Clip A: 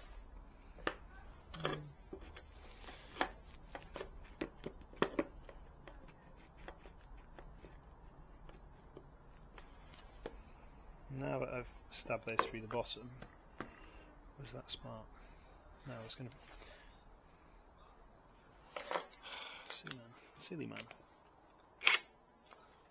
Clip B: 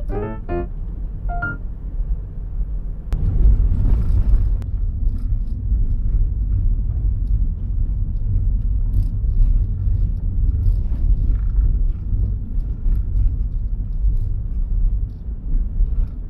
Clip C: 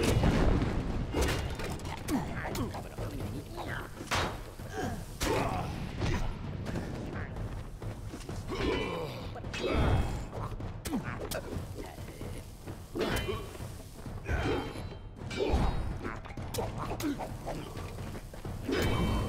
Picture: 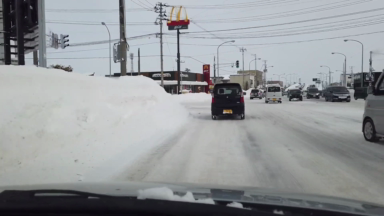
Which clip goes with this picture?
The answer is B